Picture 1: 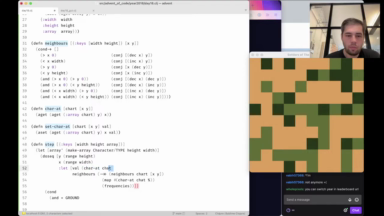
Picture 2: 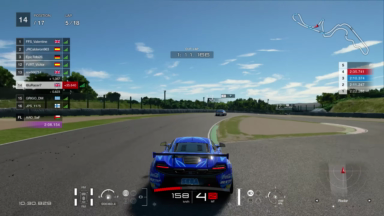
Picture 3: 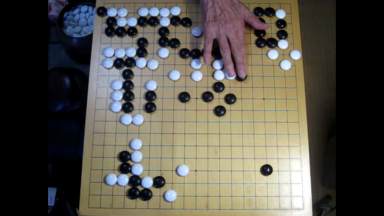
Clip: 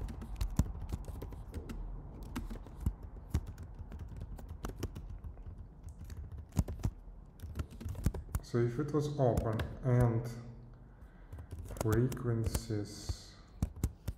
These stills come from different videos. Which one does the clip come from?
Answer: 1